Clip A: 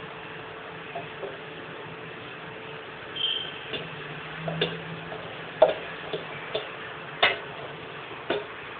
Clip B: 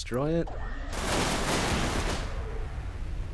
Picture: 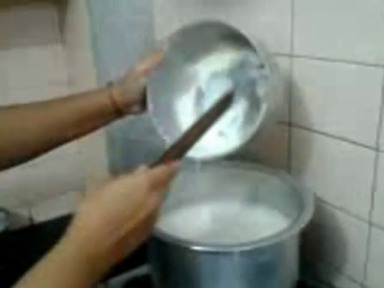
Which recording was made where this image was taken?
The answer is A